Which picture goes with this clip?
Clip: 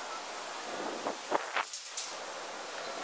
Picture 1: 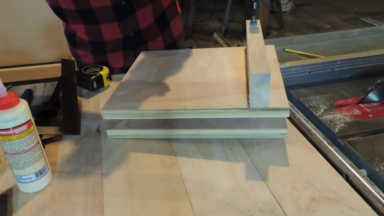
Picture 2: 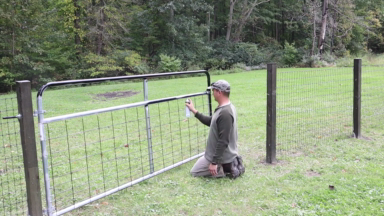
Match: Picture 2